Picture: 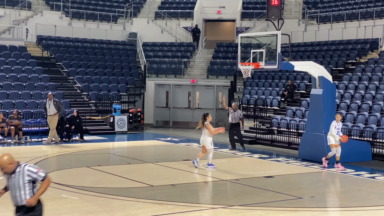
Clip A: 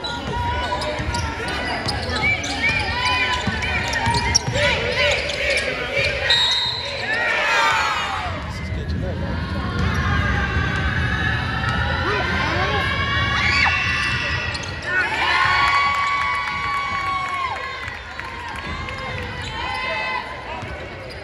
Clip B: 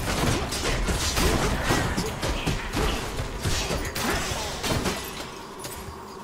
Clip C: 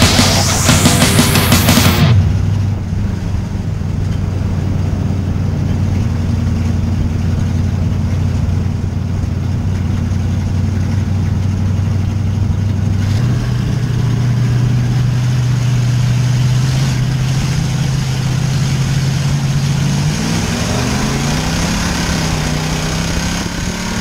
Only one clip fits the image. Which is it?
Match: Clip A